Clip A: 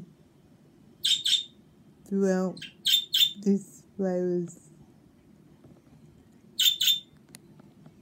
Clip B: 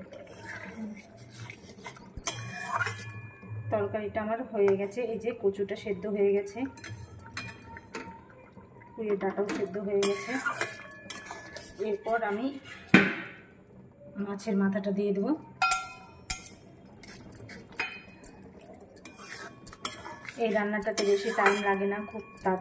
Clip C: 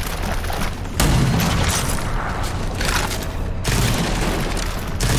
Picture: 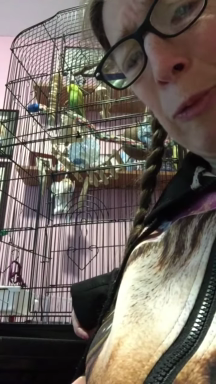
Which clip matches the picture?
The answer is A